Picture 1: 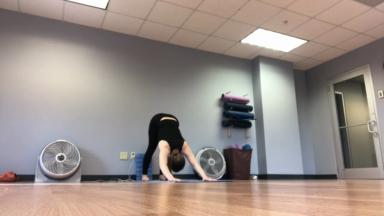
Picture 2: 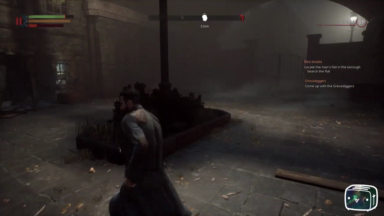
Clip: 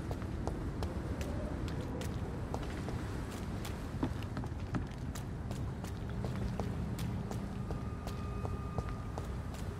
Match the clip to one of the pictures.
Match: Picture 2